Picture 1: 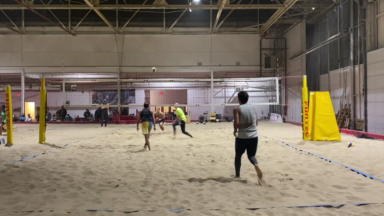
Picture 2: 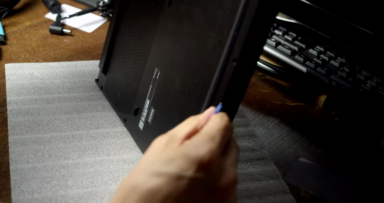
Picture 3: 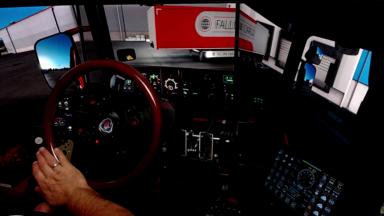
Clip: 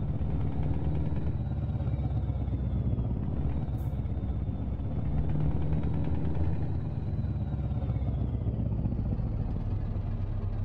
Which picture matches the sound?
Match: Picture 3